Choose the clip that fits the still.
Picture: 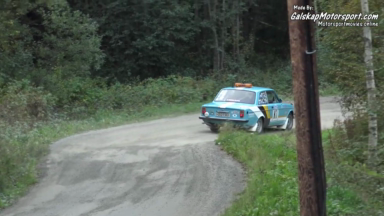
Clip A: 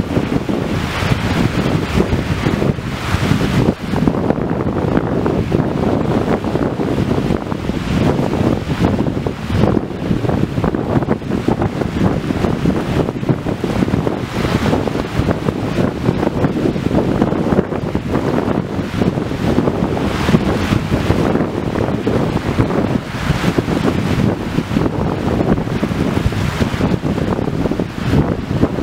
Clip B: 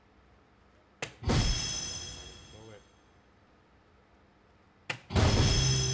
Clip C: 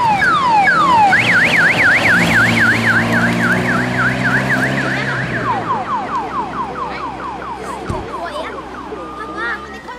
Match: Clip C